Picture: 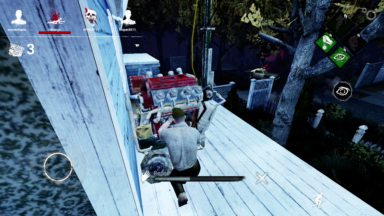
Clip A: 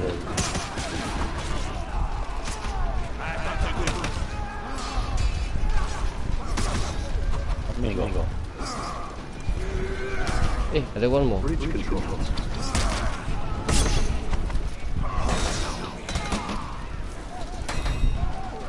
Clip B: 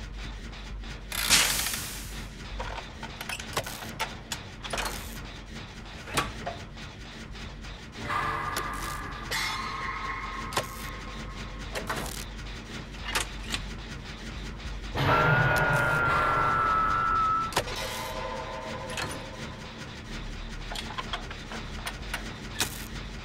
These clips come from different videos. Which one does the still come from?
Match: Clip B